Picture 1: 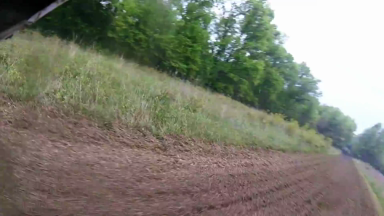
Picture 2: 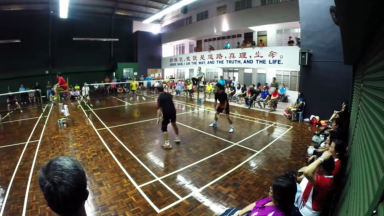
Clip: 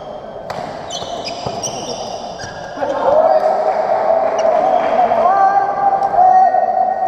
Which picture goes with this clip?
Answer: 2